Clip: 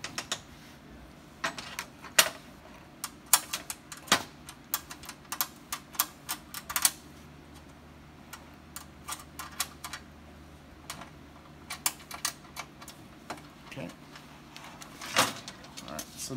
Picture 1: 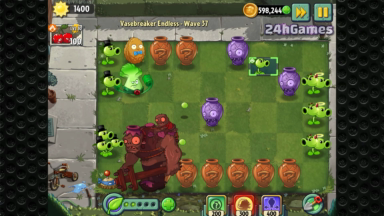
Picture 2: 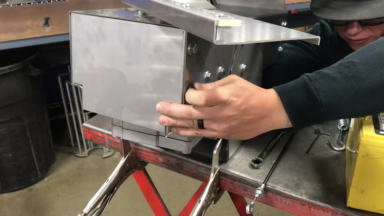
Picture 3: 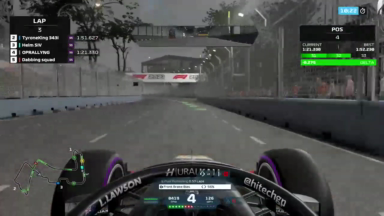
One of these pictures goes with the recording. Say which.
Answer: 2